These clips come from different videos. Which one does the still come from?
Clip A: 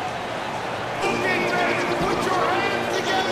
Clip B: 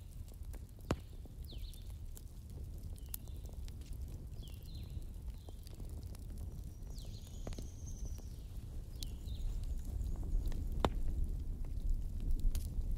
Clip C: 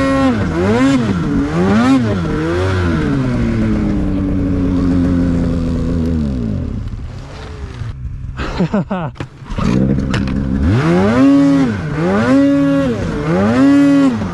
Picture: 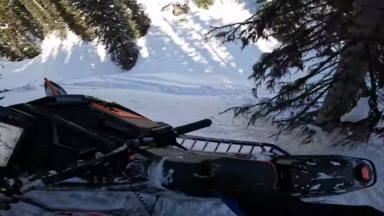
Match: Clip C